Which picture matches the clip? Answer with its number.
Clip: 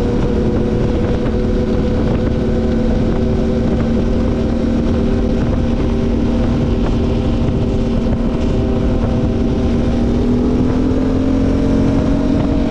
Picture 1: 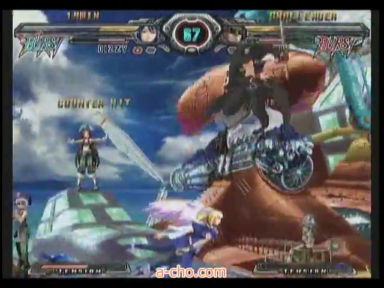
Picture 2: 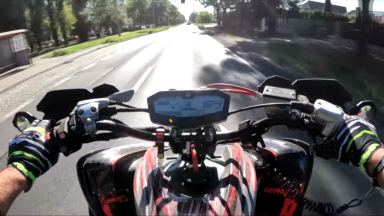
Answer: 2